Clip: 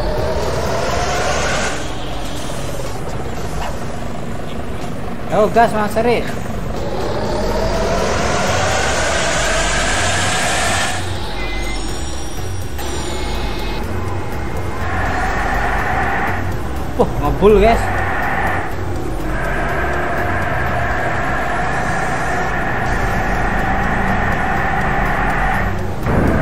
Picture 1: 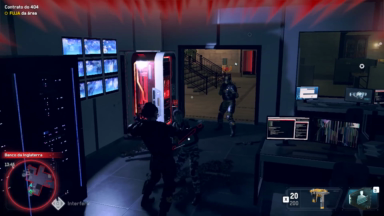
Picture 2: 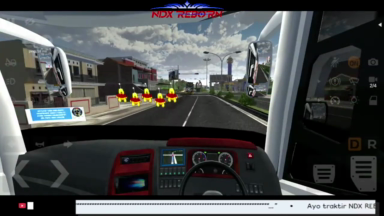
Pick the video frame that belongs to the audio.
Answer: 2